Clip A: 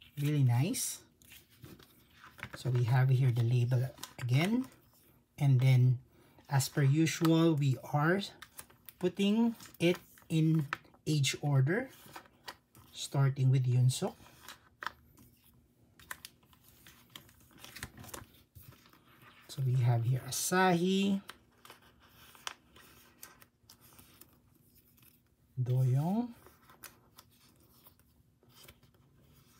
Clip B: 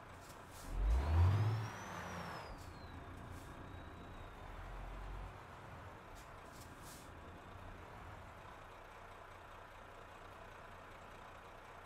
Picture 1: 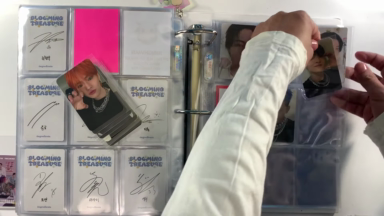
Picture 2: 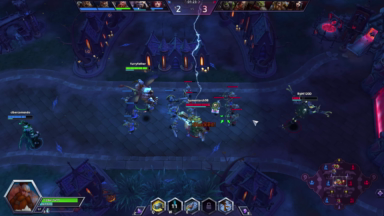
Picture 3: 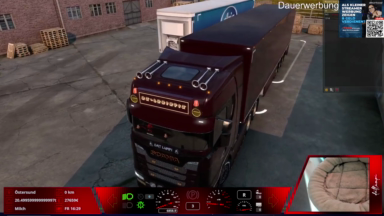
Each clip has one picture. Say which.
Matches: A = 1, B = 3